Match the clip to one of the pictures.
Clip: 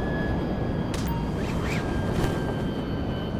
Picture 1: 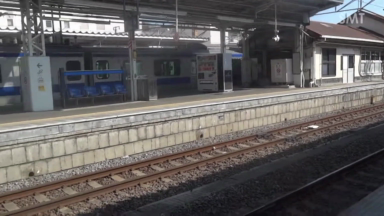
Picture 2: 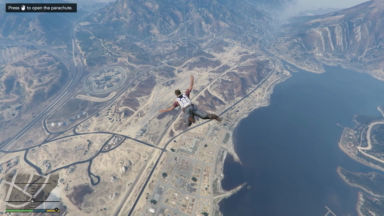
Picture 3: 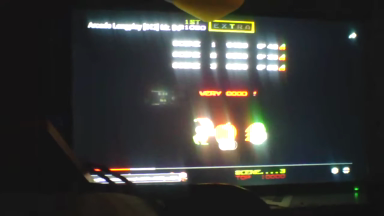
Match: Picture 2